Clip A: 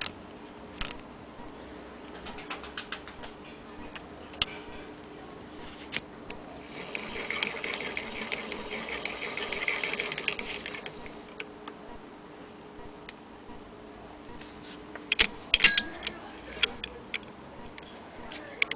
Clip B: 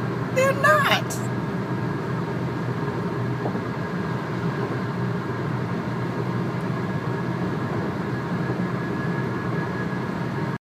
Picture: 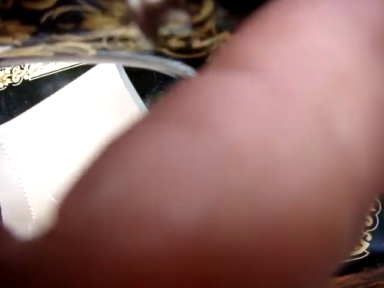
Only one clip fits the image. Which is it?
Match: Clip A